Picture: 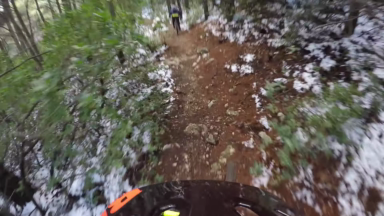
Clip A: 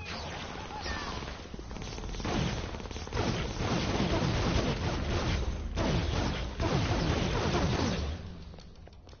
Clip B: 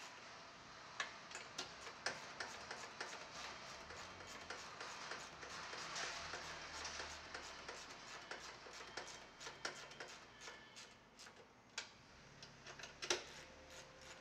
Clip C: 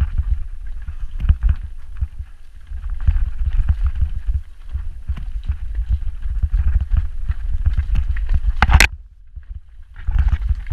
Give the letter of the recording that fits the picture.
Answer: C